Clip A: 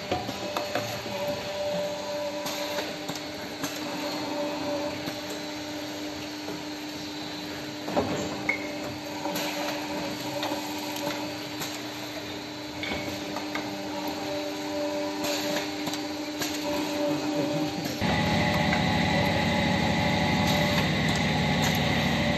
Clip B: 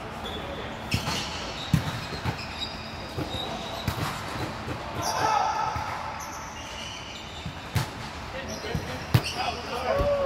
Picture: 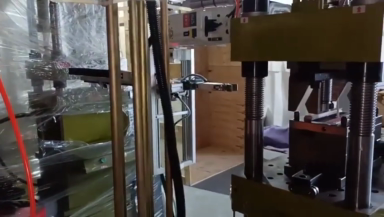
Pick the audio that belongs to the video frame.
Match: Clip A